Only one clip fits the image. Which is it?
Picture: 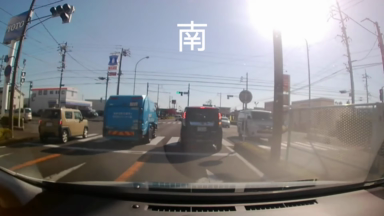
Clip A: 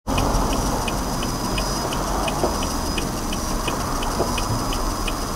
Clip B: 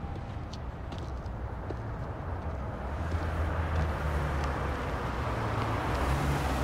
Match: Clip A